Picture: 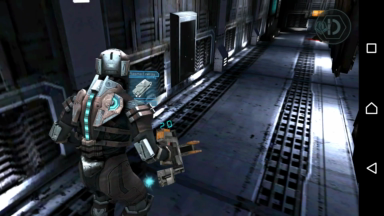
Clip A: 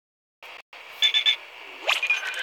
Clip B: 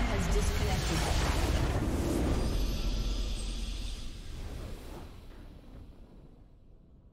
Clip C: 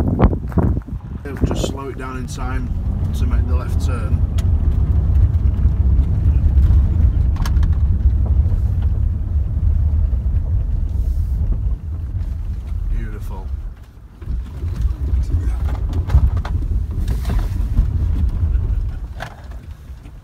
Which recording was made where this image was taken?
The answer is A